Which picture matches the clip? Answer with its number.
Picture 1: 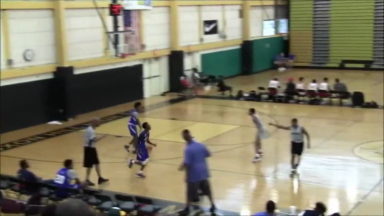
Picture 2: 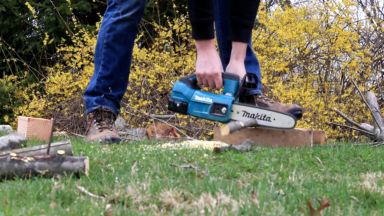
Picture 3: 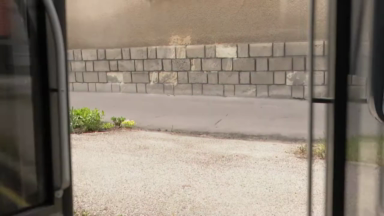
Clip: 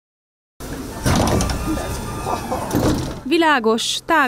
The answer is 3